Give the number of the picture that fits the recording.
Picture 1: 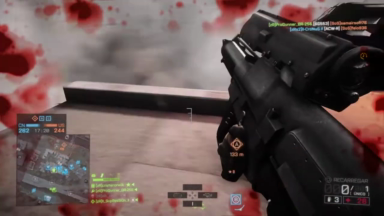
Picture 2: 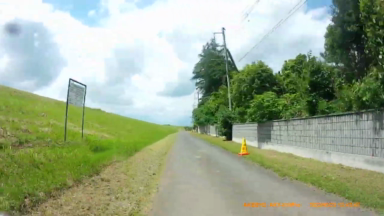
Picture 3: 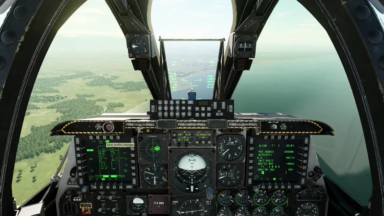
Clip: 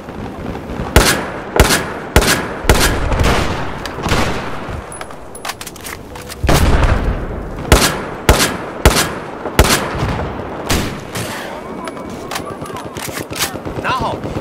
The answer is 1